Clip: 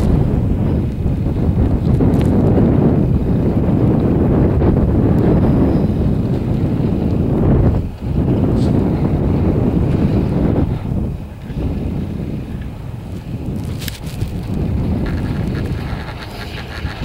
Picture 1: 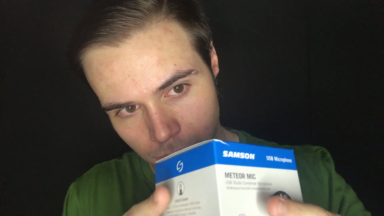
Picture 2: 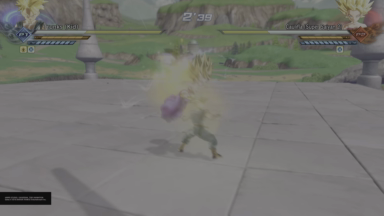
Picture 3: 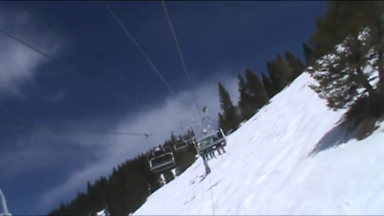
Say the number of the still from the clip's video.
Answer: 3